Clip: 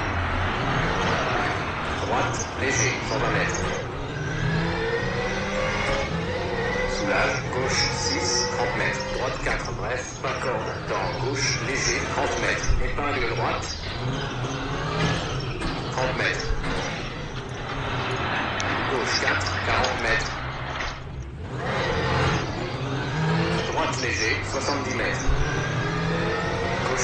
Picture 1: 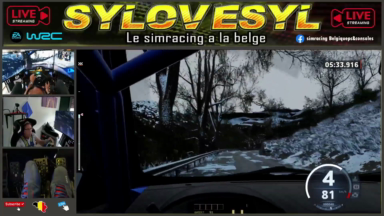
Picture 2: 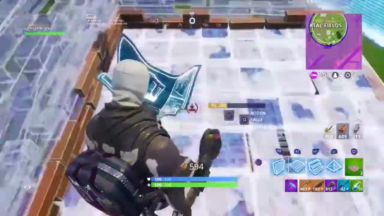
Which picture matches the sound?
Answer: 1